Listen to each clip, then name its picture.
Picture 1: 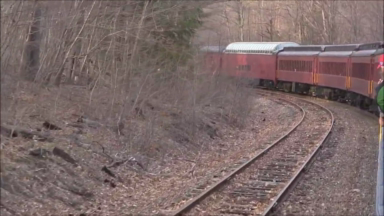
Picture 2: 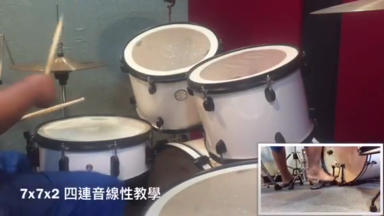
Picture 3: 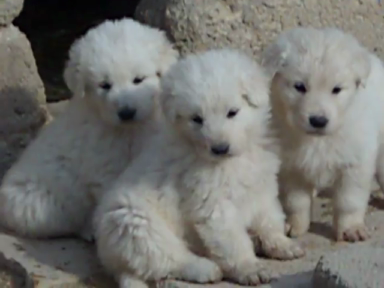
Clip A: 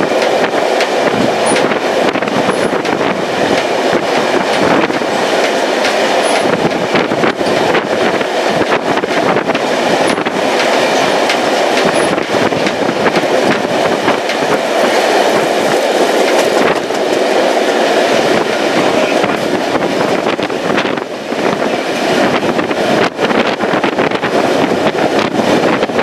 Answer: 1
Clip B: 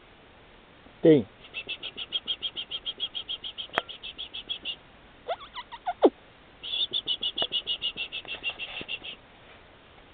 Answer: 3